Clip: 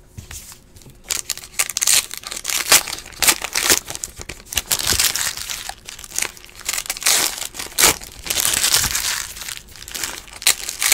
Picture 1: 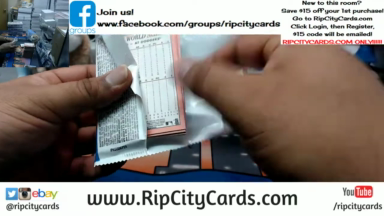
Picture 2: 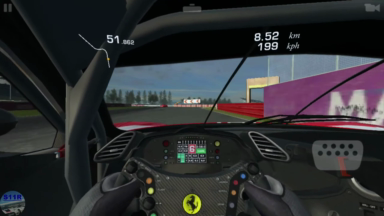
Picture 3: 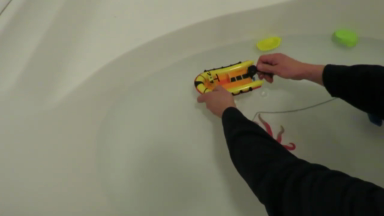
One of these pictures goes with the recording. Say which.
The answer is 1